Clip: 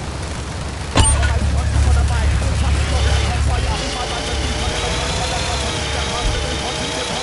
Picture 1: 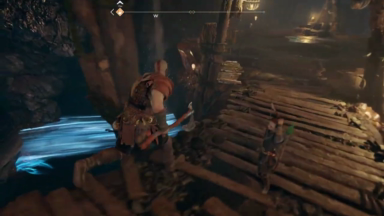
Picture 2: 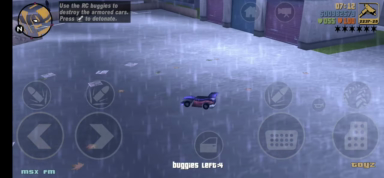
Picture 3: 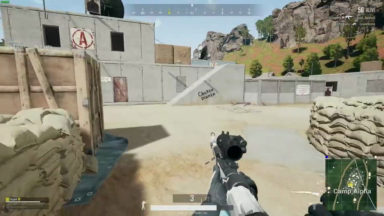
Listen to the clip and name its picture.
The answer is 2